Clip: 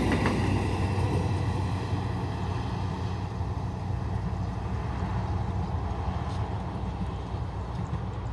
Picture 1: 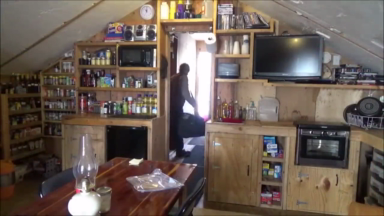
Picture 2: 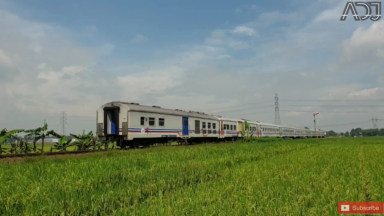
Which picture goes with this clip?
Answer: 2